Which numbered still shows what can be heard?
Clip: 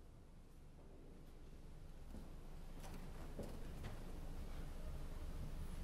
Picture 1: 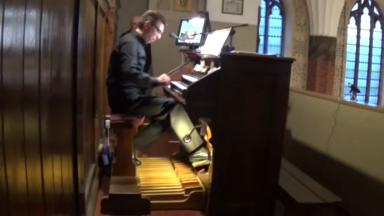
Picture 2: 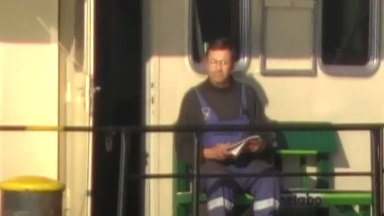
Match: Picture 1